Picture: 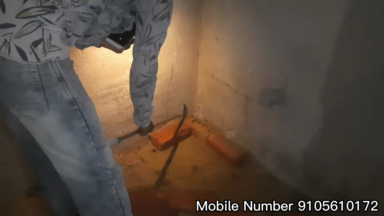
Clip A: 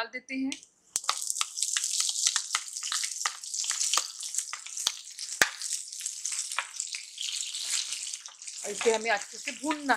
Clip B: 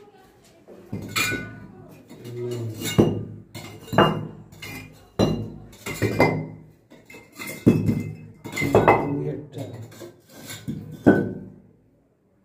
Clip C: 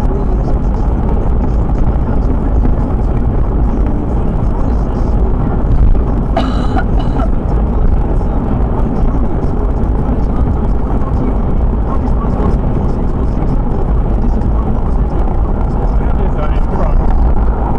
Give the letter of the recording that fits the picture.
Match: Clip B